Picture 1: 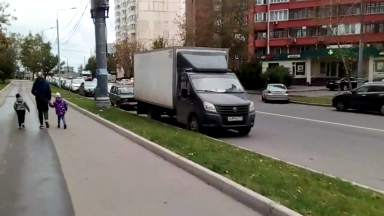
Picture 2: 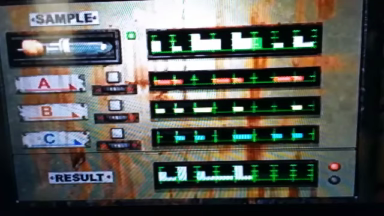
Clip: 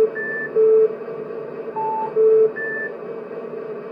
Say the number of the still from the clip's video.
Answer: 2